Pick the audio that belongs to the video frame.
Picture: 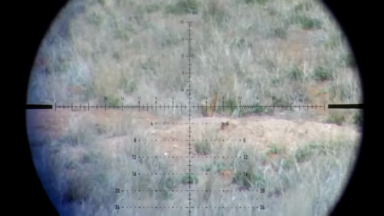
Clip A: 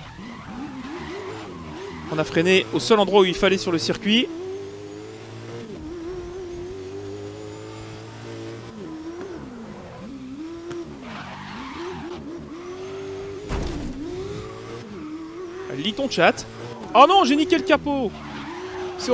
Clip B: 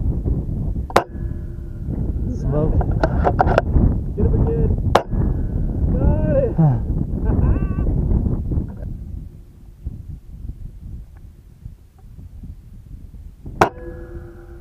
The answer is B